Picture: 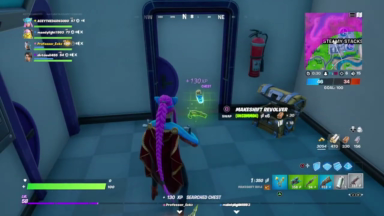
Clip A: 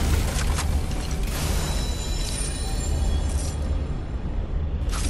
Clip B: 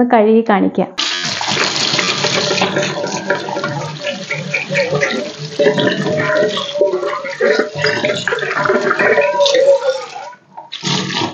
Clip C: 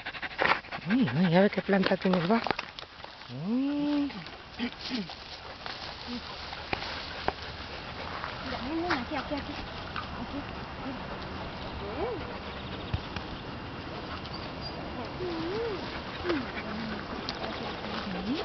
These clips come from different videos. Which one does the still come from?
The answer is A